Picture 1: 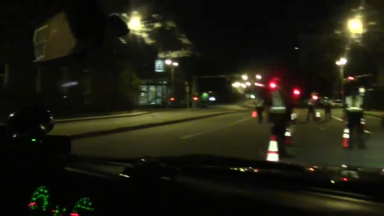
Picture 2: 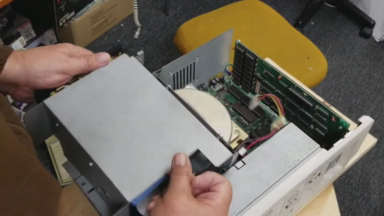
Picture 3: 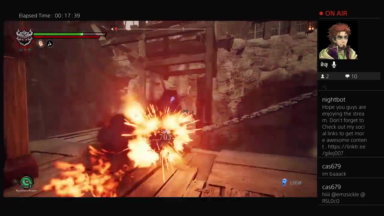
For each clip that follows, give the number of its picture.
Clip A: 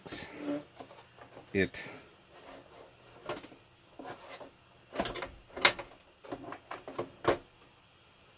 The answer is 2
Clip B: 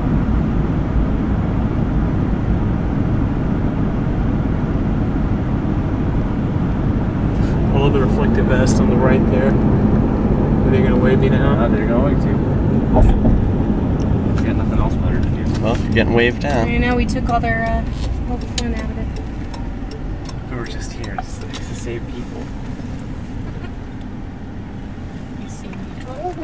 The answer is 1